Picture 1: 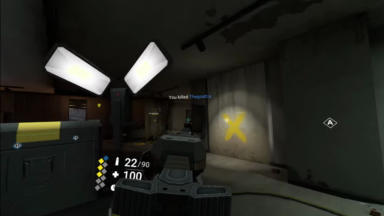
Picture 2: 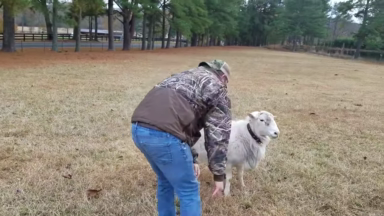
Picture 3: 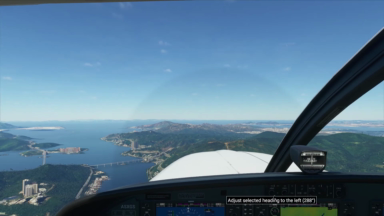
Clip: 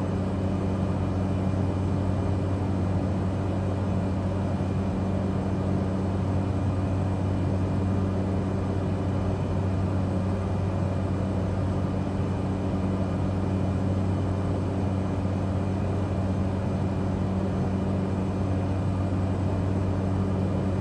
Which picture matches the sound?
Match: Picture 3